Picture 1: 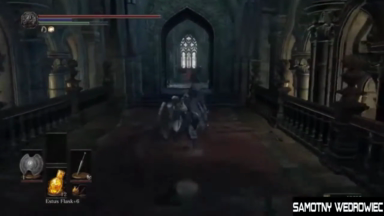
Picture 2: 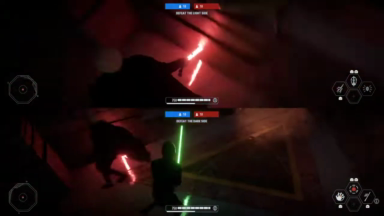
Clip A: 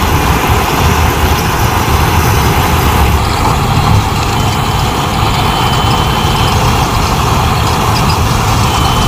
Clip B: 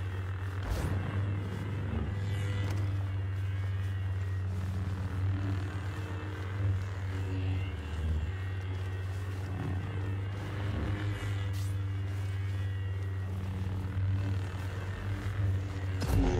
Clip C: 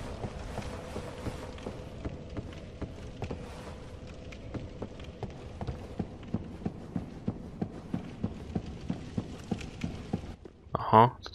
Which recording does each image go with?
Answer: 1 C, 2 B